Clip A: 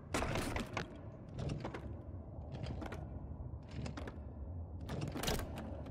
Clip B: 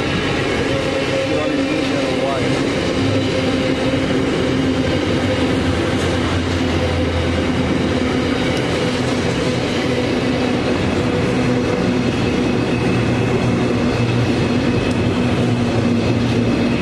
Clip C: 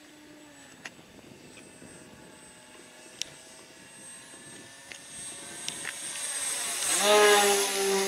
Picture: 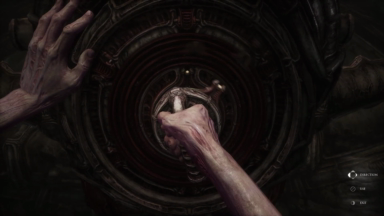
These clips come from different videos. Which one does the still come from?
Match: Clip A